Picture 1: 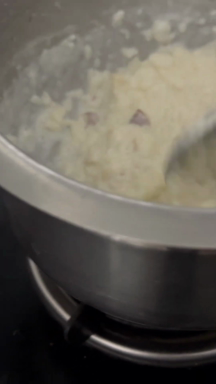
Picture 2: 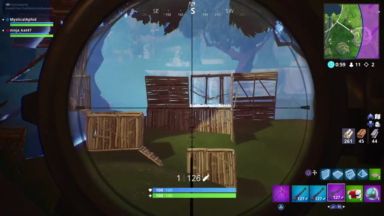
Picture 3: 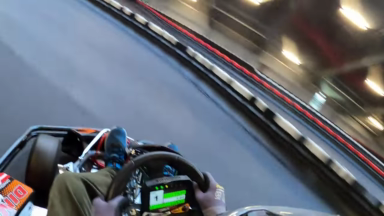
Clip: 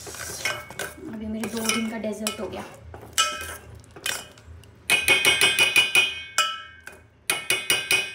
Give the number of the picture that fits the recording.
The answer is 1